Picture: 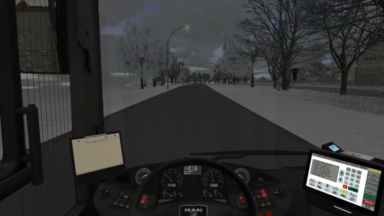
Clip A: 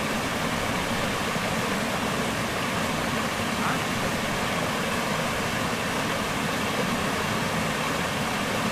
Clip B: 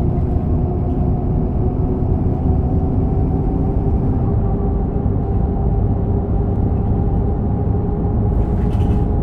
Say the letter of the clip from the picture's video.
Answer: B